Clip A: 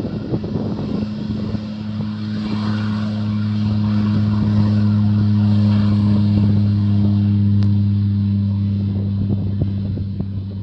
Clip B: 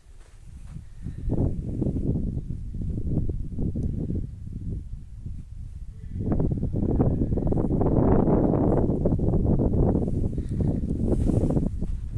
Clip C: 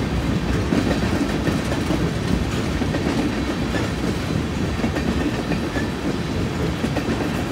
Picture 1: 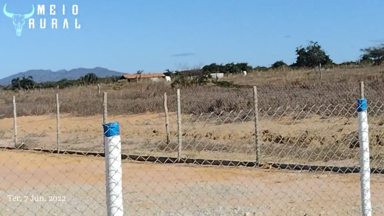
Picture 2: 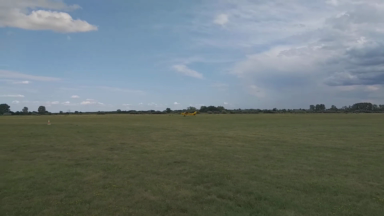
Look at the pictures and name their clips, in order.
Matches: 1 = B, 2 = A